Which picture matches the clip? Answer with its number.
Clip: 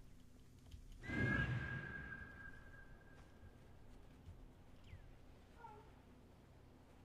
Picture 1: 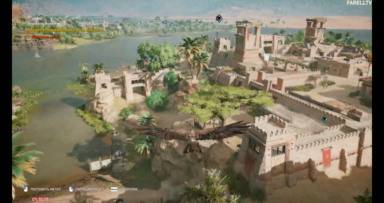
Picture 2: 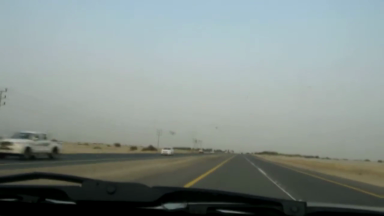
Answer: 1